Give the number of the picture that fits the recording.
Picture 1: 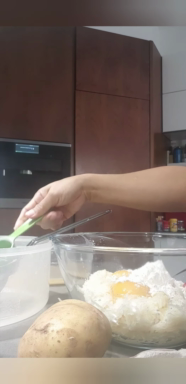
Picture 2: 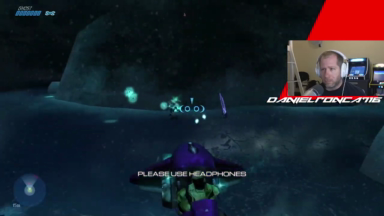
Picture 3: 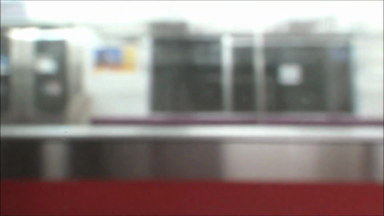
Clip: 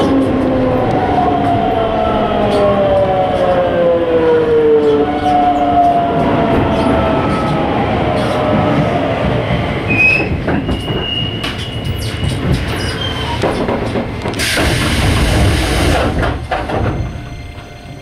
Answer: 3